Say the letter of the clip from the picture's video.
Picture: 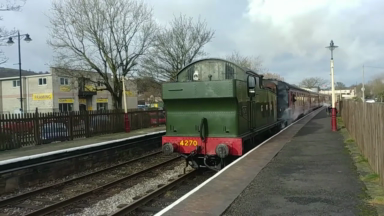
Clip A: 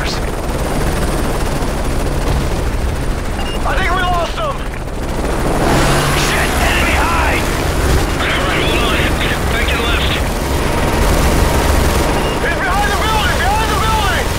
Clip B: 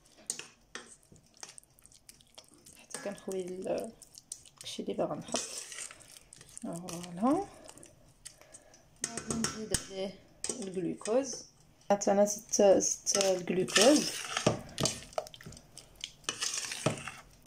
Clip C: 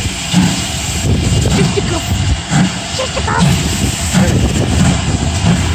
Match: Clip C